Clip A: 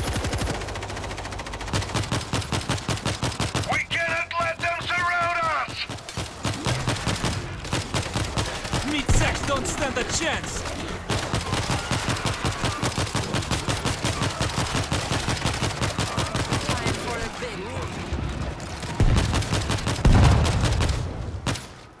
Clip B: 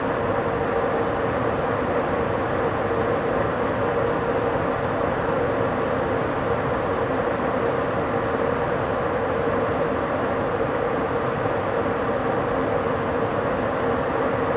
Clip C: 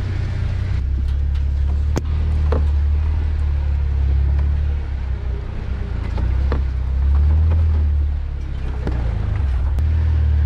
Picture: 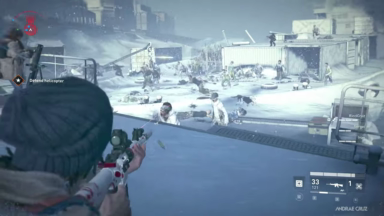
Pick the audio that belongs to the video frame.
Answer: A